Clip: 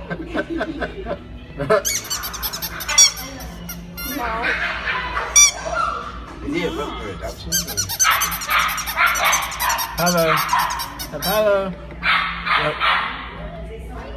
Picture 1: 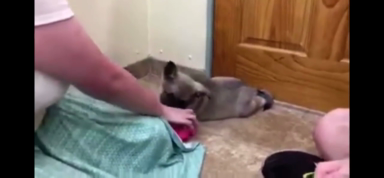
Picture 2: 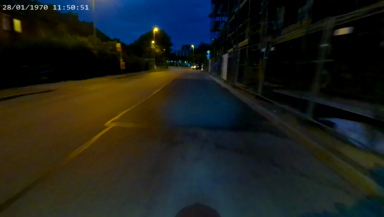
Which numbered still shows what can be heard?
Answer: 1